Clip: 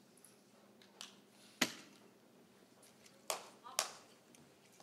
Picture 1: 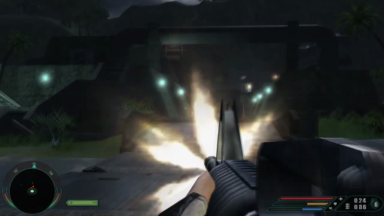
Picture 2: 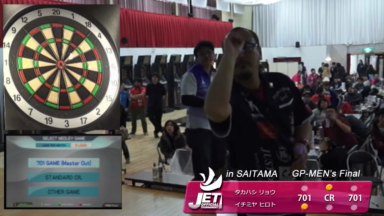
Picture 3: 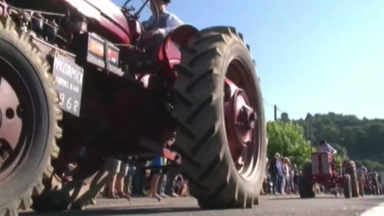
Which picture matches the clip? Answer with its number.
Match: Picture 2